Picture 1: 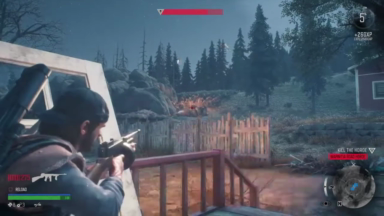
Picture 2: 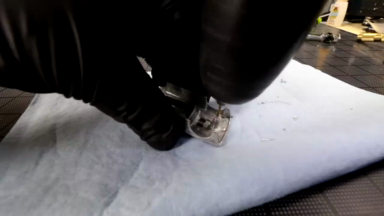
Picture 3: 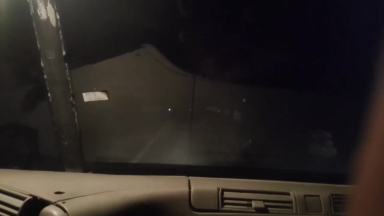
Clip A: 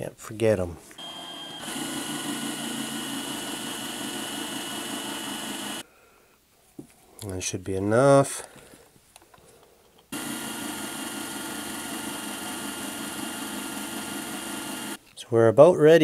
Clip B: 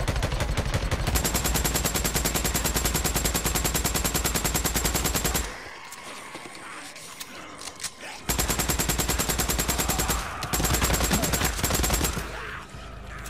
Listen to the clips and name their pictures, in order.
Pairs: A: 2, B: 1